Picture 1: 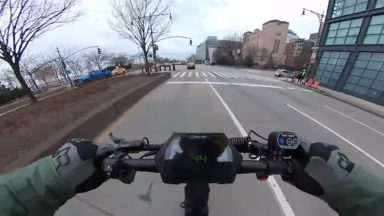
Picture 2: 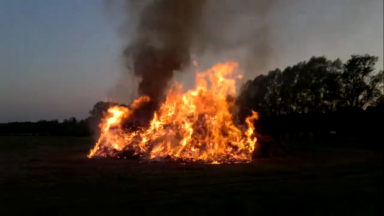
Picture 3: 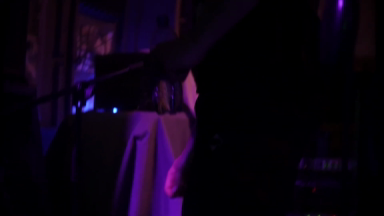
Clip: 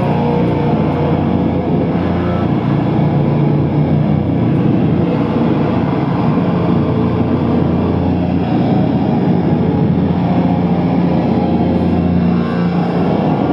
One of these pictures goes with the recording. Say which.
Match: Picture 3